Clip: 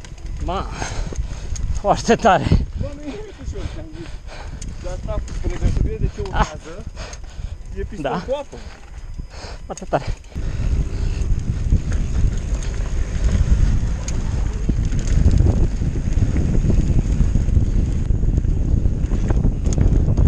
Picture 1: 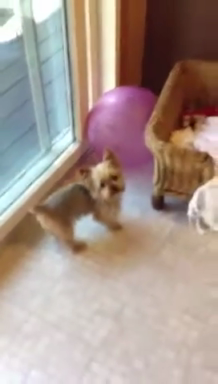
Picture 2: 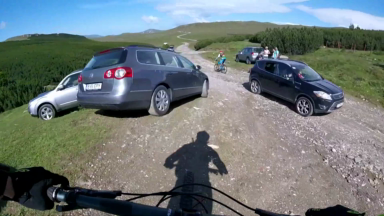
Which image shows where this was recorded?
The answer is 2